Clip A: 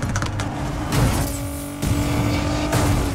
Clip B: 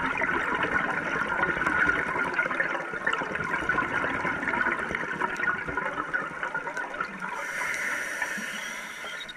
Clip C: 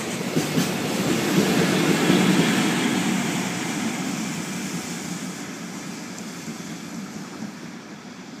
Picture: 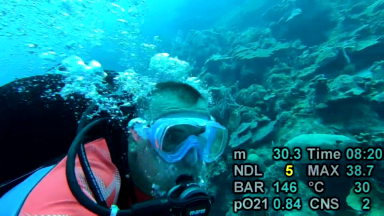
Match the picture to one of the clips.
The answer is B